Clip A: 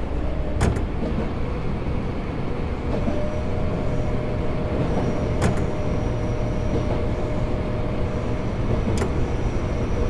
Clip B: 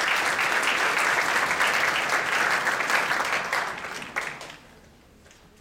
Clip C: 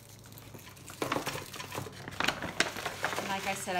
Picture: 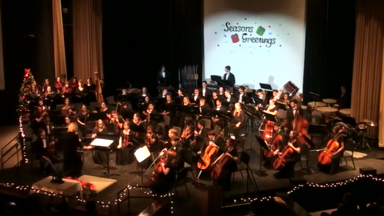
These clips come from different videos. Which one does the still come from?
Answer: B